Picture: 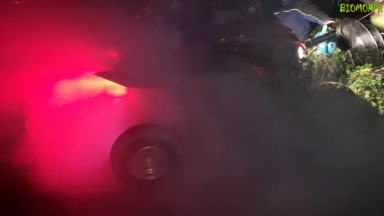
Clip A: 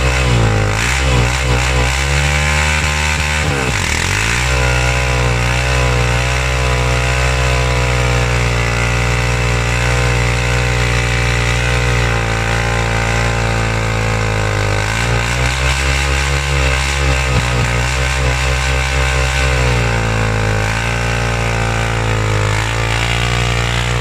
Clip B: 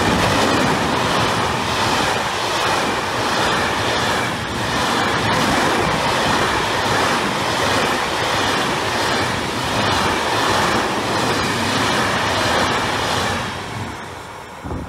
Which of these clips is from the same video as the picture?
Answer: A